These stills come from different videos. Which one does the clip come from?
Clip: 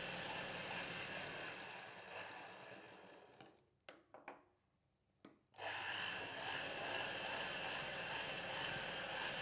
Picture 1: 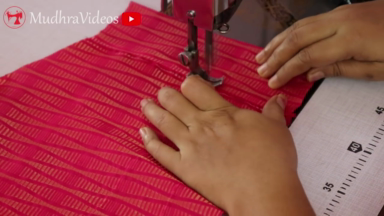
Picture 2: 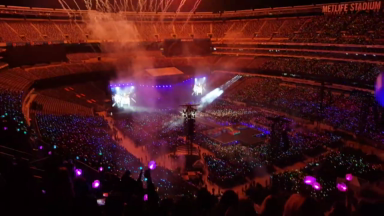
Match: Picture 1